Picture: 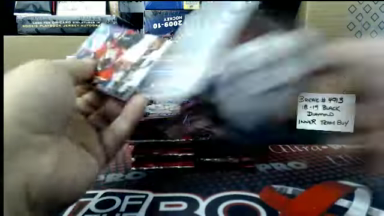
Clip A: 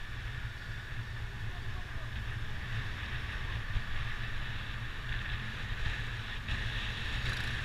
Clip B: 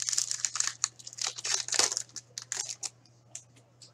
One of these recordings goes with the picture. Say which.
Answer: B